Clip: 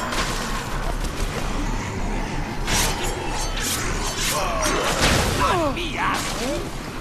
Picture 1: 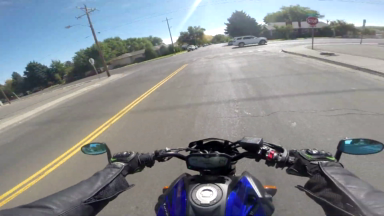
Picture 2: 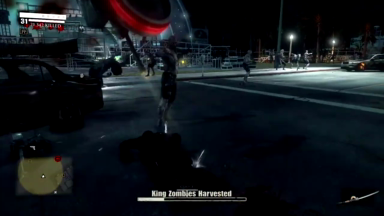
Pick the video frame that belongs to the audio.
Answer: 2